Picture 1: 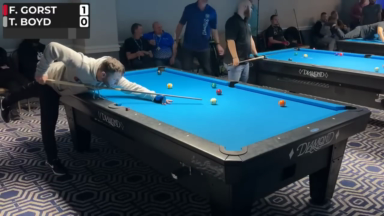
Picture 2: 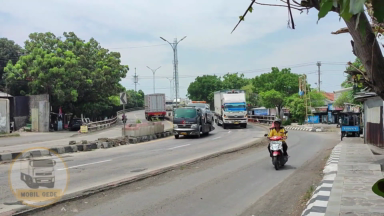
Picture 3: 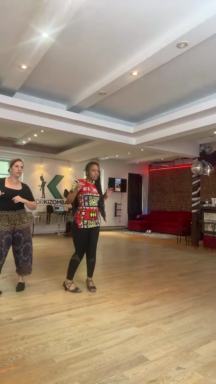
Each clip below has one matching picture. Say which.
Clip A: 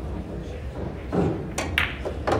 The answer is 1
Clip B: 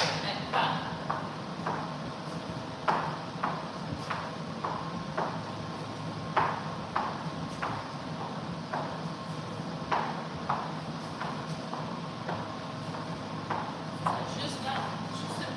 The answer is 3